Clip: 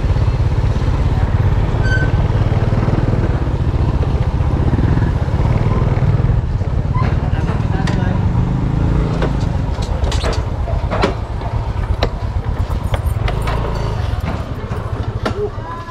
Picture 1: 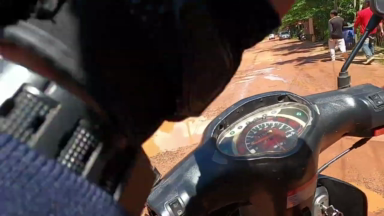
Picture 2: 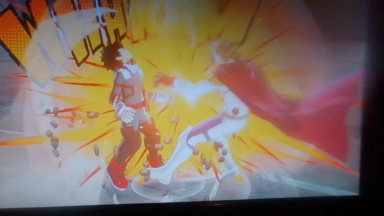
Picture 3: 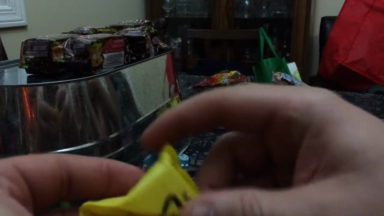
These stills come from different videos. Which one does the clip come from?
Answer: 1